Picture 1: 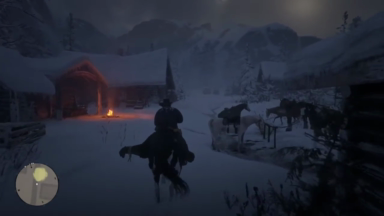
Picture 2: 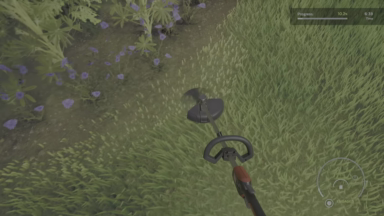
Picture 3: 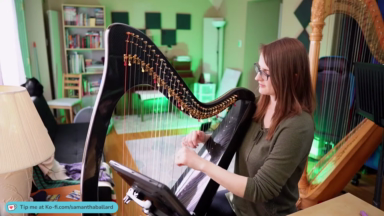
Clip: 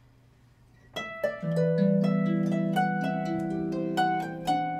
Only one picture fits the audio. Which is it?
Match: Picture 3